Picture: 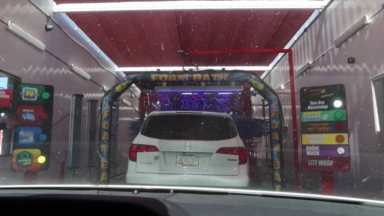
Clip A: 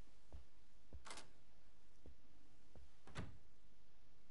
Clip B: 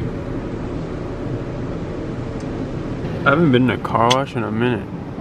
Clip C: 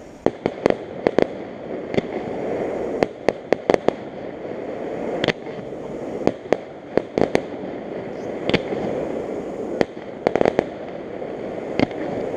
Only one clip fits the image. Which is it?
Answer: B